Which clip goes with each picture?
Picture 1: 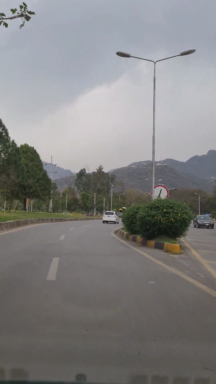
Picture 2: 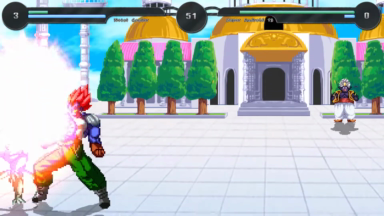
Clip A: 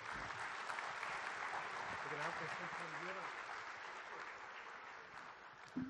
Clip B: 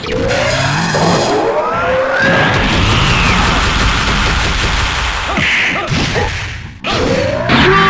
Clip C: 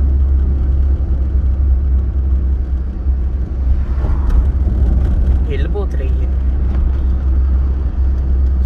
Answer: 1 C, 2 B